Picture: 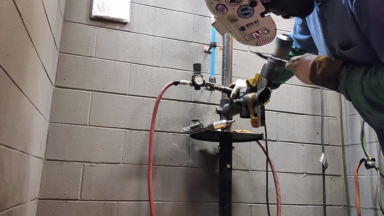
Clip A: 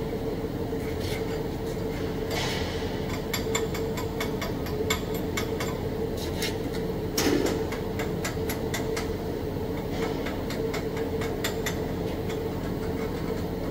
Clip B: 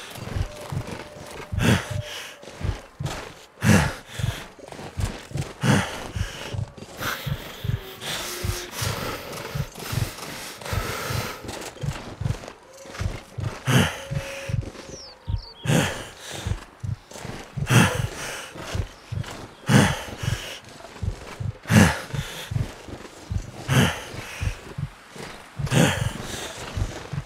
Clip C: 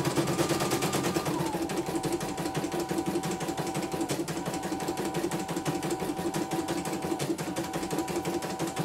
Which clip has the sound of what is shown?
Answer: A